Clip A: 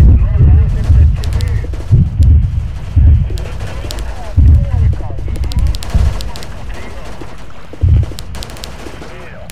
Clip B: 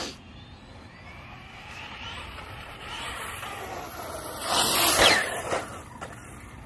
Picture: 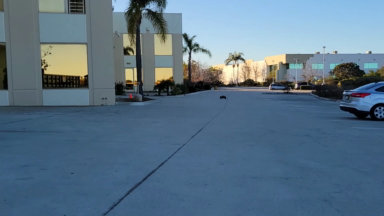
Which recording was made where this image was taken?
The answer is B